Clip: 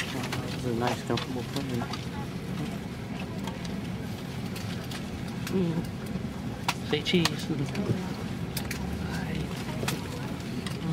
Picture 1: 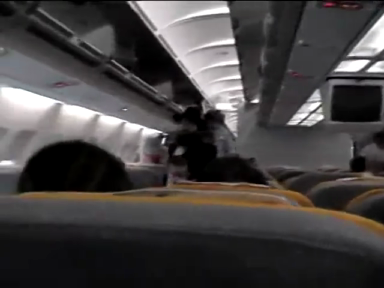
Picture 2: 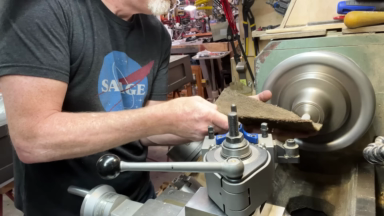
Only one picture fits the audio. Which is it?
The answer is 1